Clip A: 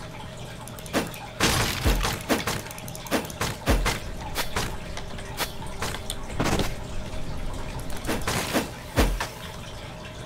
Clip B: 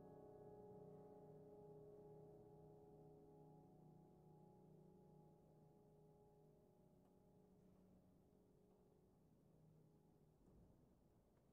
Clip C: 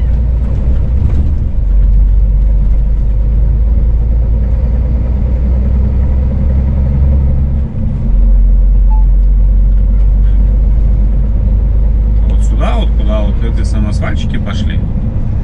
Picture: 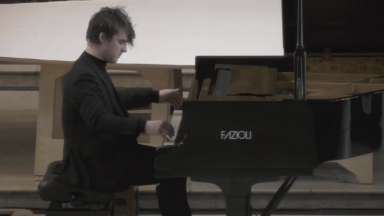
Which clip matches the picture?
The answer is B